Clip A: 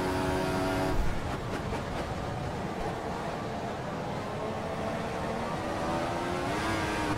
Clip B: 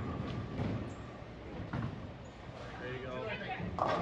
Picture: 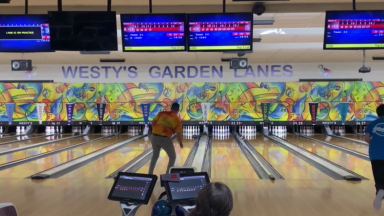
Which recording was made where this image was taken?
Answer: B